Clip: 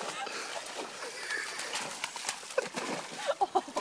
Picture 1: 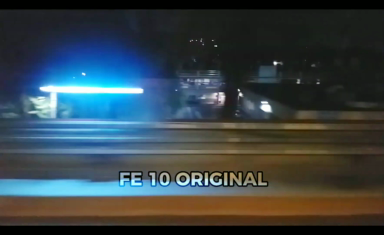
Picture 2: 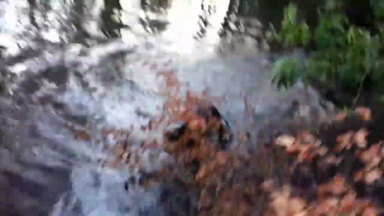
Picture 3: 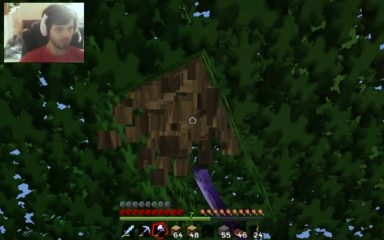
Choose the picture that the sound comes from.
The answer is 2